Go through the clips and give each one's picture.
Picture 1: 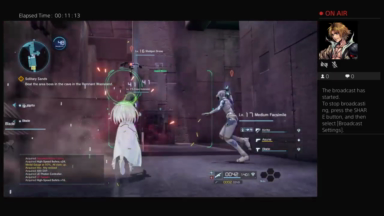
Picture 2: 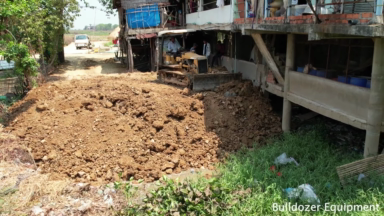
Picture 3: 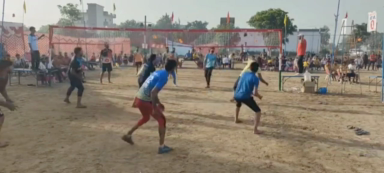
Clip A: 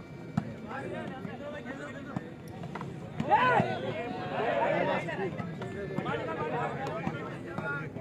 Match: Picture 3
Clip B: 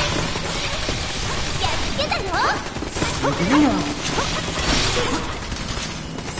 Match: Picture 1